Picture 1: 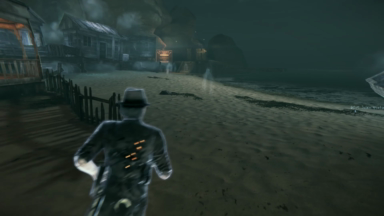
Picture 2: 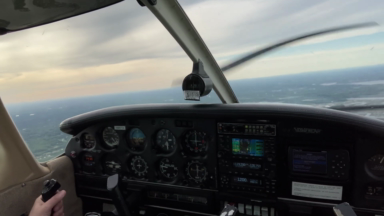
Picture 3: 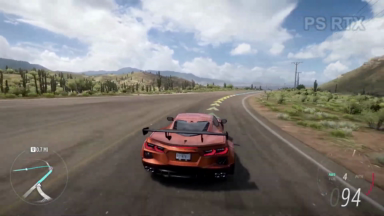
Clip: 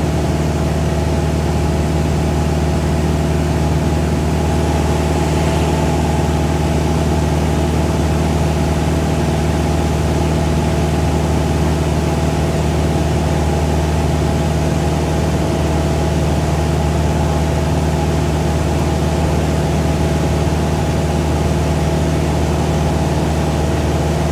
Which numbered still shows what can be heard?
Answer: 2